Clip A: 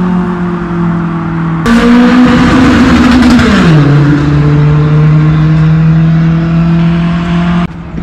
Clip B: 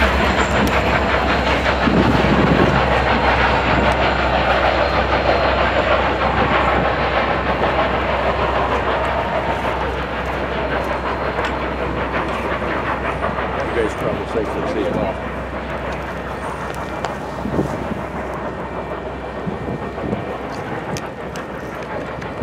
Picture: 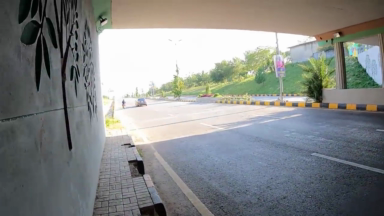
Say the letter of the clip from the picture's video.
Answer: A